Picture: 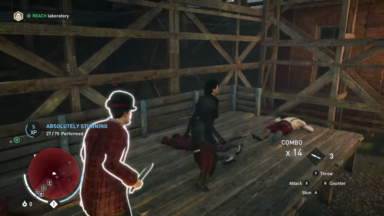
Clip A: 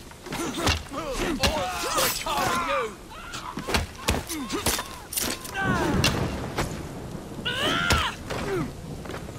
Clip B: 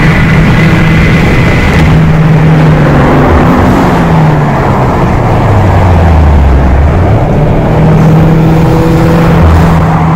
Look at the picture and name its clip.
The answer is A